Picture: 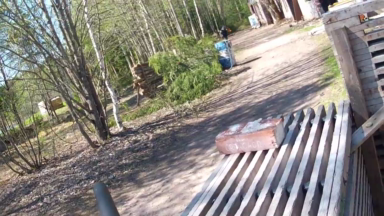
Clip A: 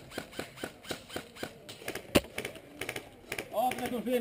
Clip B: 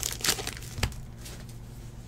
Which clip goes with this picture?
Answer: A